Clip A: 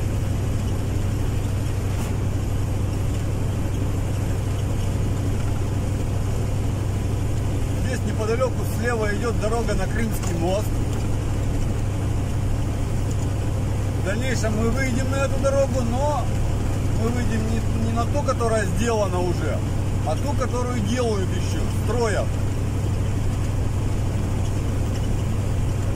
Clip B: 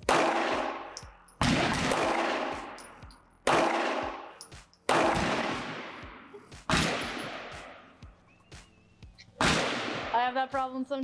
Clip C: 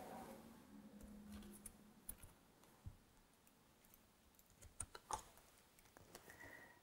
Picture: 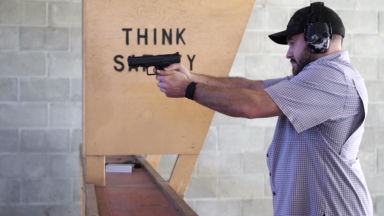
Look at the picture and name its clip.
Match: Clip B